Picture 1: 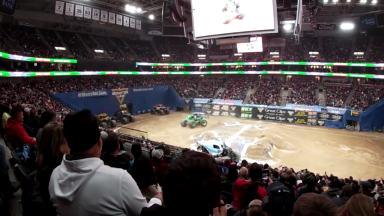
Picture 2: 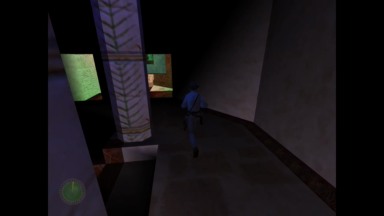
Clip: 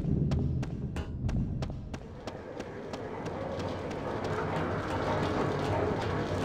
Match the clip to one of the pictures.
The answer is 2